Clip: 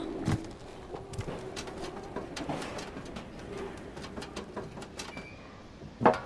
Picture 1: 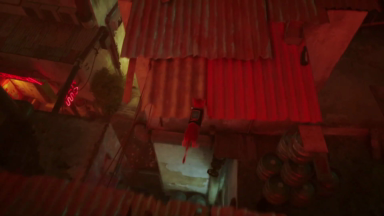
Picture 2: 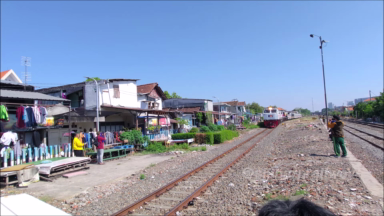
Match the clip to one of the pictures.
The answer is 1